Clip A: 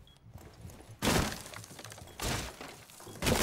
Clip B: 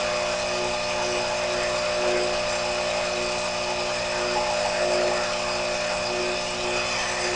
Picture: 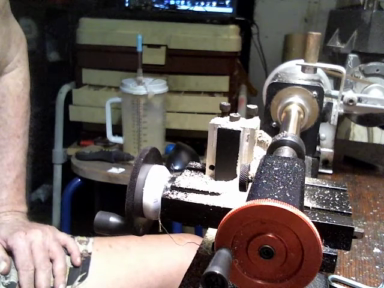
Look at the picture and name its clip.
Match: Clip B